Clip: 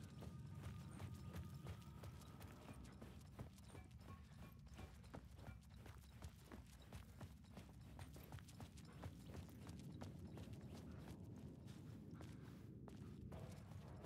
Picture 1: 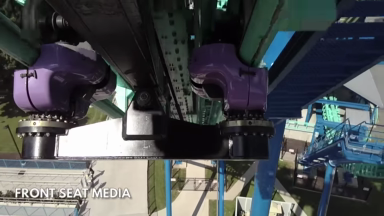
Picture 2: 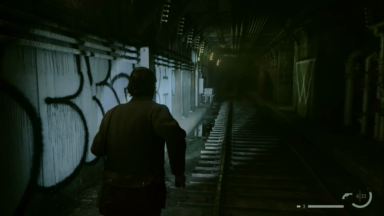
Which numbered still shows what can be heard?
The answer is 2